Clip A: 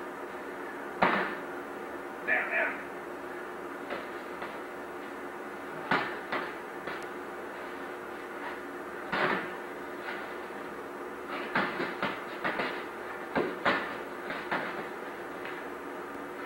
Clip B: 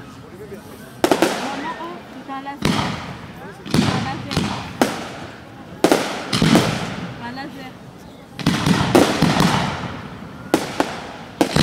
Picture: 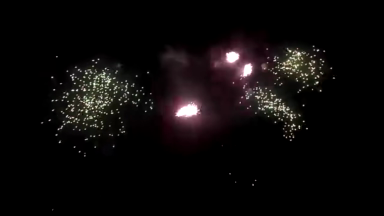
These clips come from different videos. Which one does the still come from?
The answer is B